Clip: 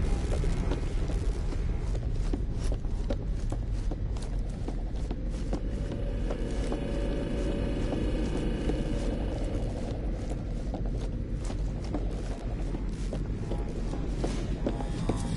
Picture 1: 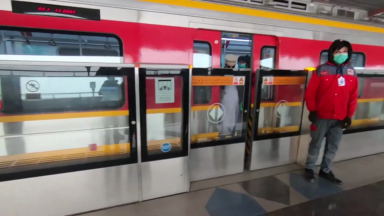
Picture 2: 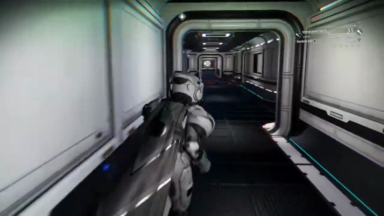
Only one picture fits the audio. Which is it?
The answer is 2